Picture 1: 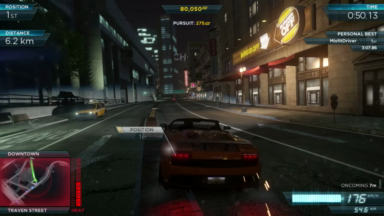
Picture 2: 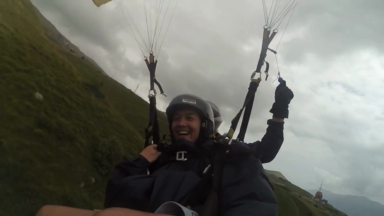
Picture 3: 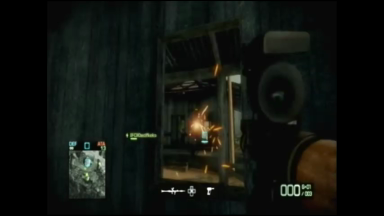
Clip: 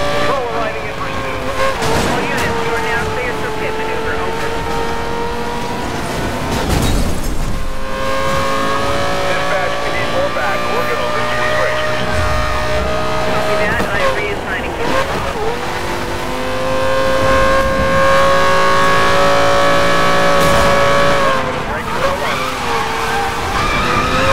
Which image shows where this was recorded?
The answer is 1